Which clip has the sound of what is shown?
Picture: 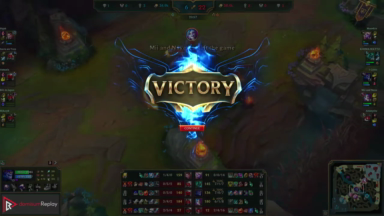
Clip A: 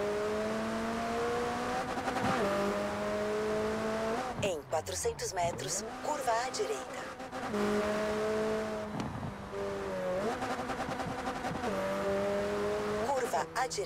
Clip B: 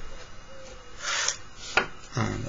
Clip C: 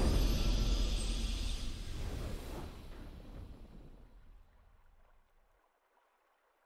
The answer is C